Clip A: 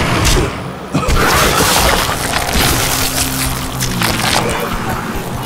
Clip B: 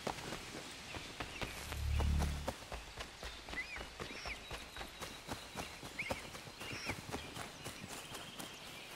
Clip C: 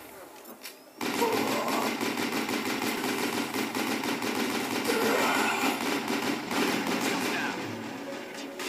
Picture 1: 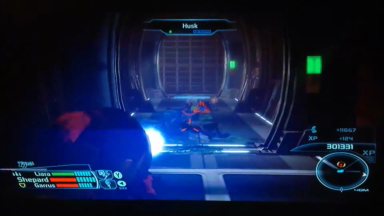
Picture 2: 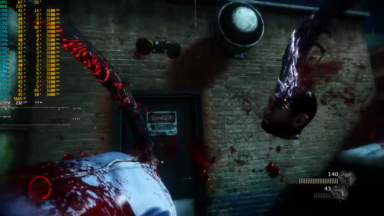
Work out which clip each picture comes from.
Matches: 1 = C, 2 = A